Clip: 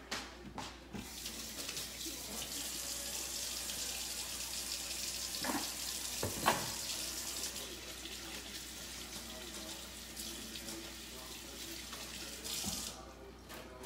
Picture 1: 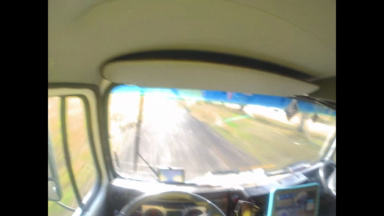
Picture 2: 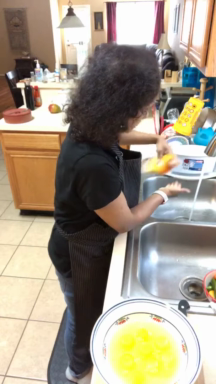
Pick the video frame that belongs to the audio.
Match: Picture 2